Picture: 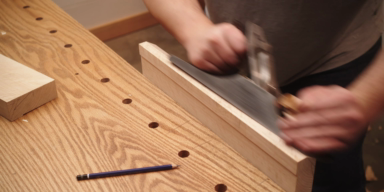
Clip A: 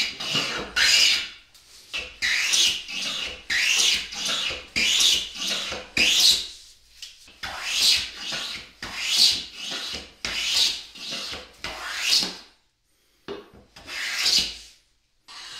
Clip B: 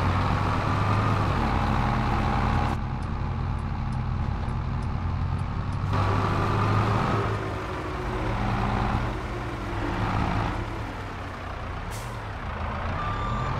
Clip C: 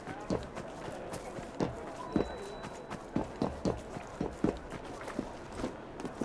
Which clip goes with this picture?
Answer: A